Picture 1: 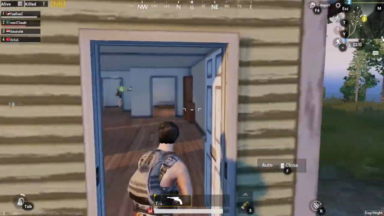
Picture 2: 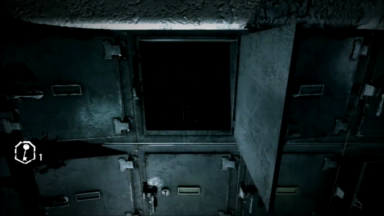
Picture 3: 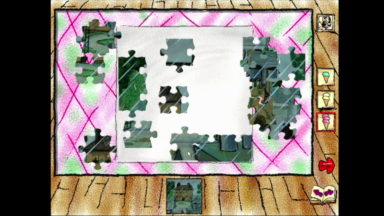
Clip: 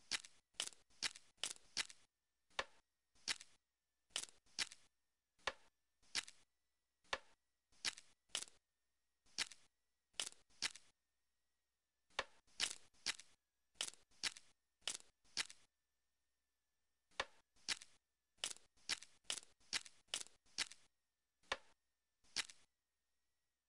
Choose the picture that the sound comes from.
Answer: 3